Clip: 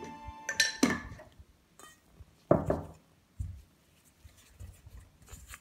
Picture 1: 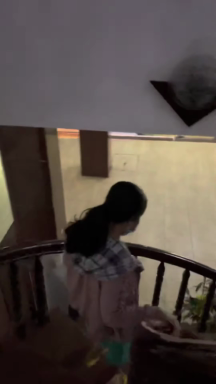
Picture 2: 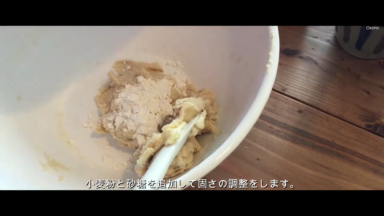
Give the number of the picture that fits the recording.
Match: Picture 2